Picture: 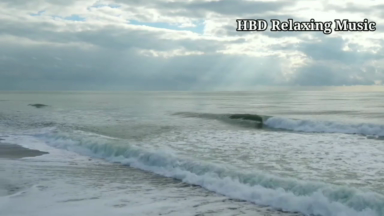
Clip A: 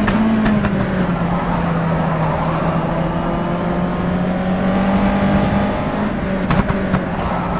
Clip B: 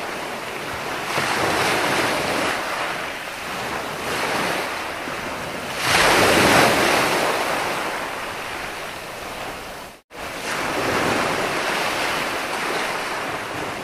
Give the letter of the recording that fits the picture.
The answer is B